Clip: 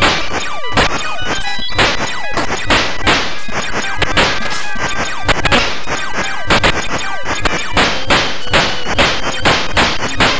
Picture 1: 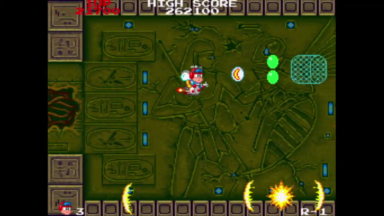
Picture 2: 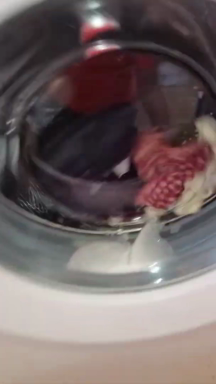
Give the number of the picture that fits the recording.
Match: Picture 1